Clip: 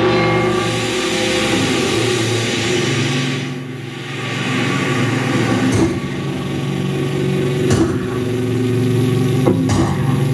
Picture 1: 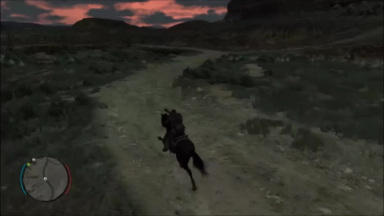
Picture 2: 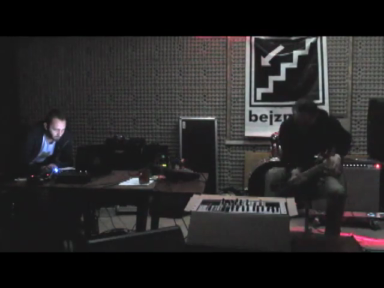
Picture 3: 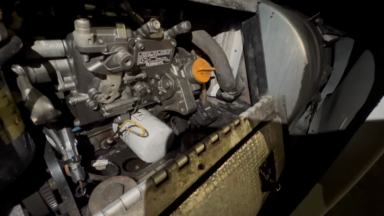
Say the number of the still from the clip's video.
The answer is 2